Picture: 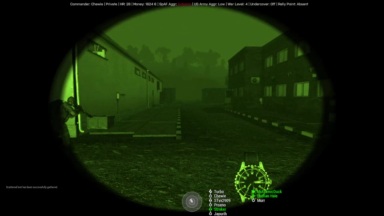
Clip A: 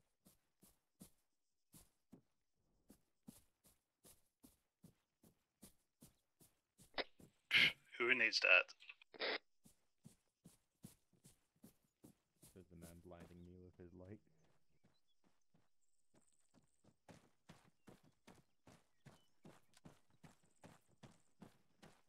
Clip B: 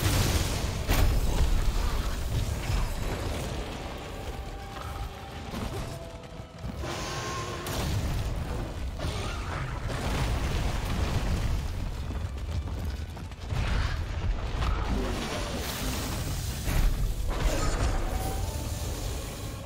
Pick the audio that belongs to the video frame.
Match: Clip A